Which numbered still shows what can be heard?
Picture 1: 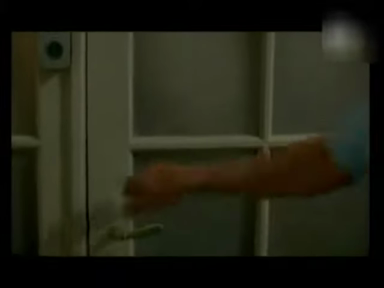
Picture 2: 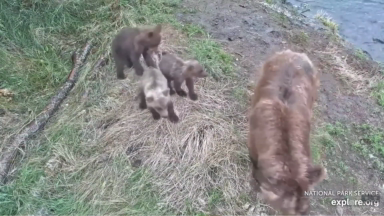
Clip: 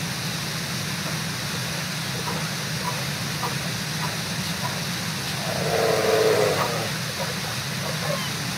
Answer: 2